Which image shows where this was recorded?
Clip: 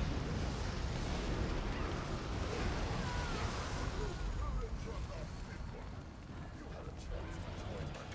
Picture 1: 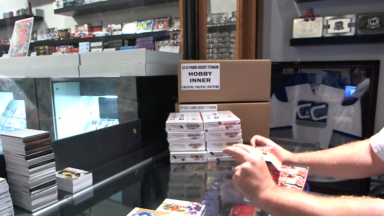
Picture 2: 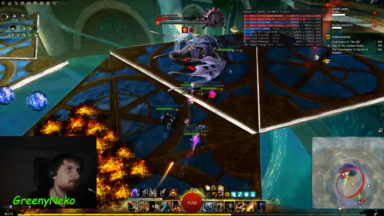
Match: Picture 2